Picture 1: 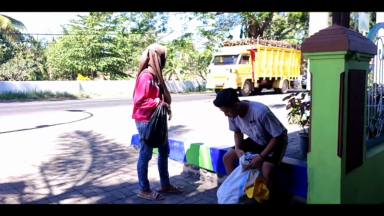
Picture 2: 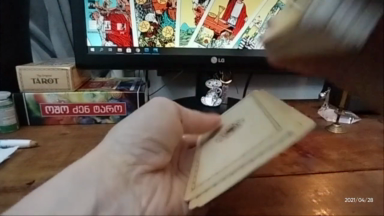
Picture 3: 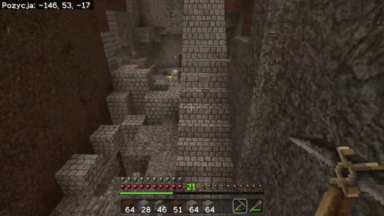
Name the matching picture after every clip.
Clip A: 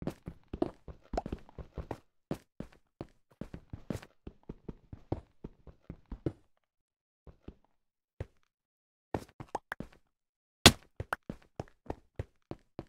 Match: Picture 3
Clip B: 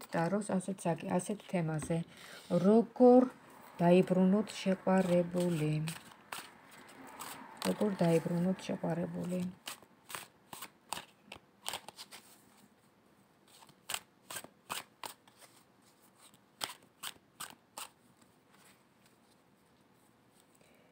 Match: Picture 2